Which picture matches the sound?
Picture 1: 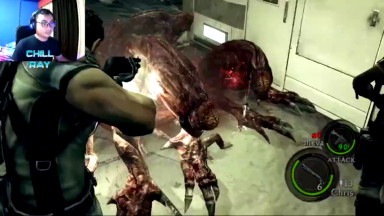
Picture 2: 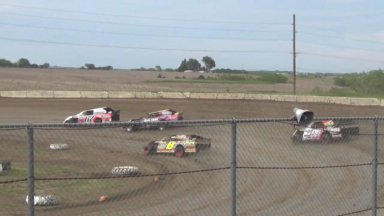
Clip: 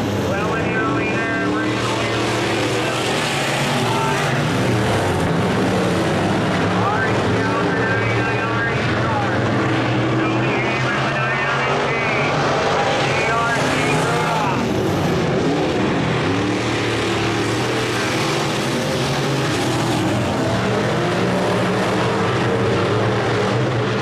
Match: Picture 2